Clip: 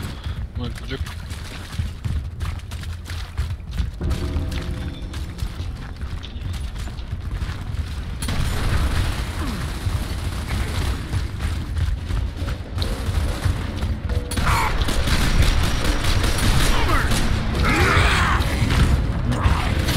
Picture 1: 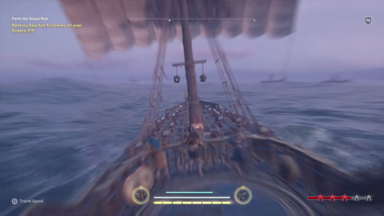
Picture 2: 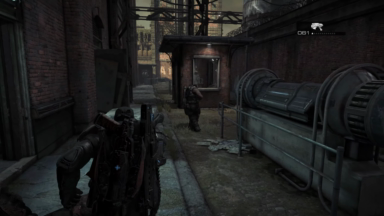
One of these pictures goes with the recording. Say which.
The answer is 2